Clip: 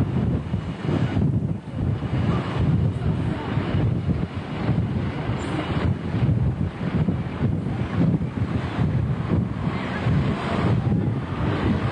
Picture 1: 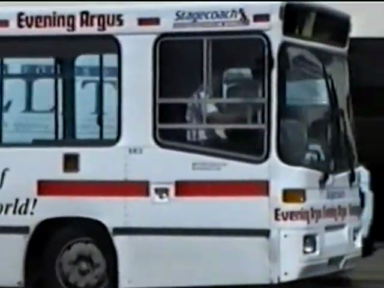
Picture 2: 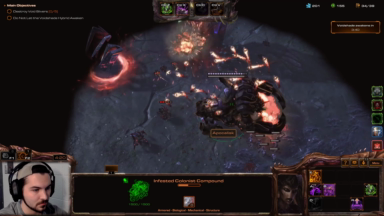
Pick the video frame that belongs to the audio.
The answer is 1